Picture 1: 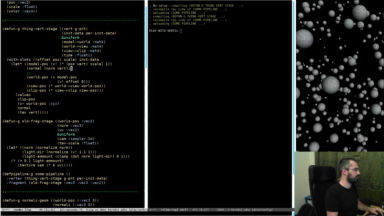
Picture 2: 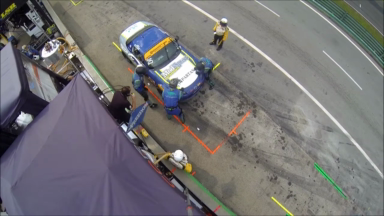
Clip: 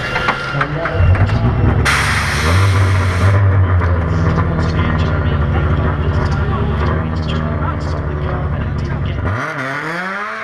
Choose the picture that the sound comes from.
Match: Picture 2